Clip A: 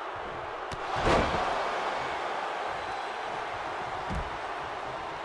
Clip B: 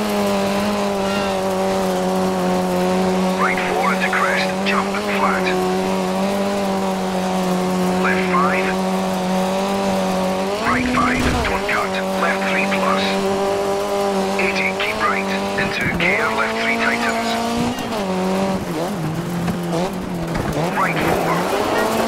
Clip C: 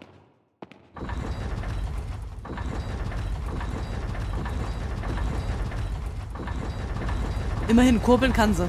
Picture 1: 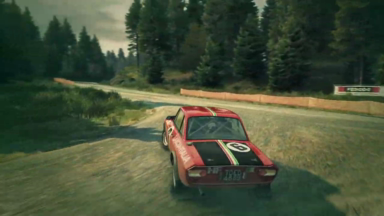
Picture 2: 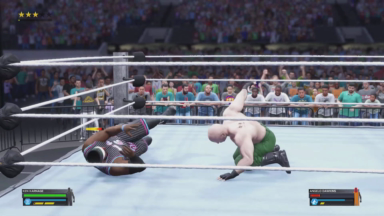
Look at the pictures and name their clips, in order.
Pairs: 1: B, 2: A